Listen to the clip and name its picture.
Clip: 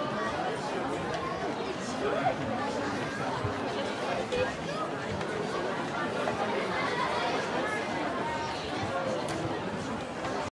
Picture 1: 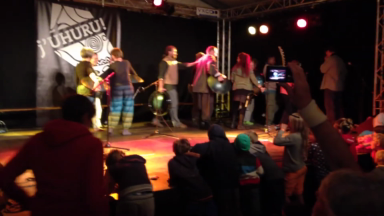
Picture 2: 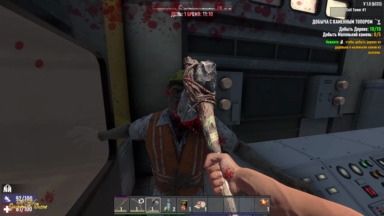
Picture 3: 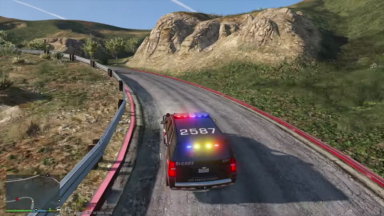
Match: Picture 1